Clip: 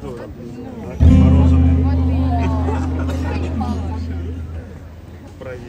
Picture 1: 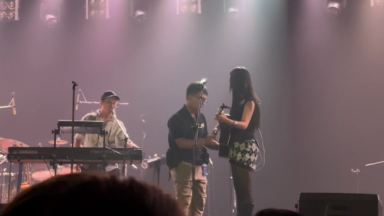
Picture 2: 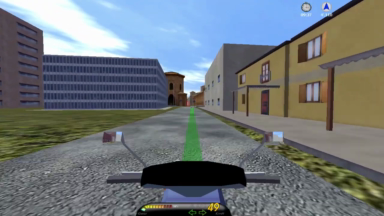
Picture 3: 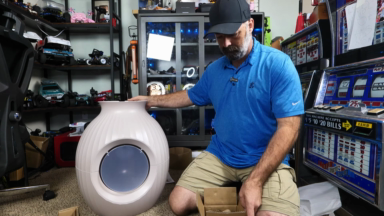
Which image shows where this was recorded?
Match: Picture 1